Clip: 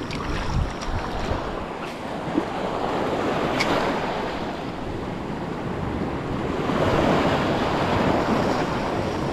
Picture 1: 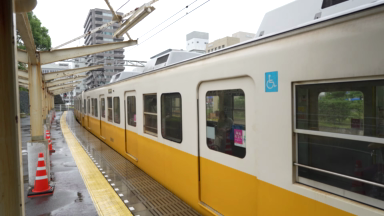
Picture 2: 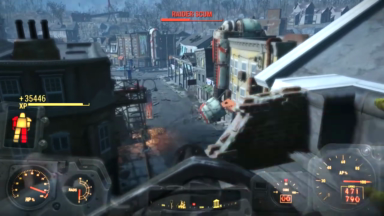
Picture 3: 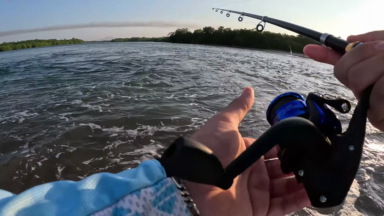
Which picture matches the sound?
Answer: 3